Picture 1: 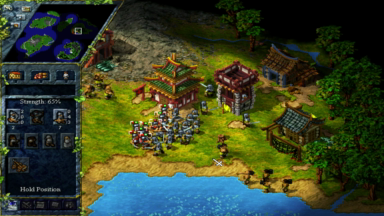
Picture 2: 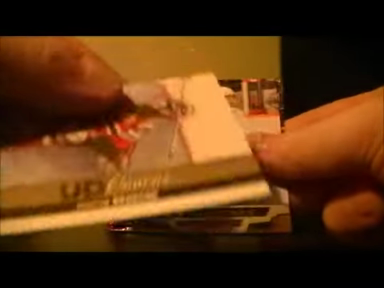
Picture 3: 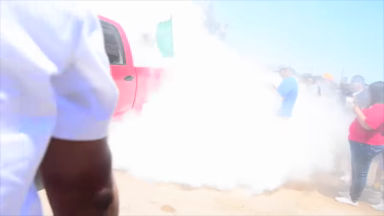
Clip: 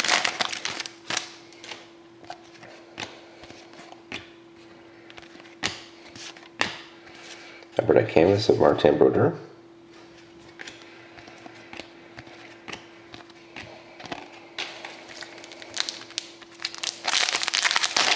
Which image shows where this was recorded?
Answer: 2